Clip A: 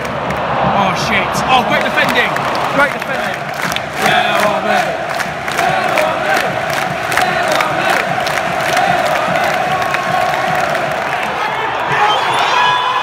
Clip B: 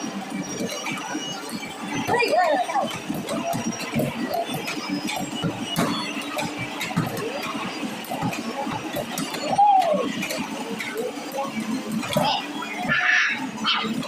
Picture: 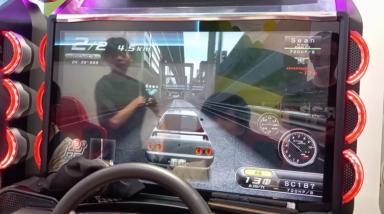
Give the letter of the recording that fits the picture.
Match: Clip B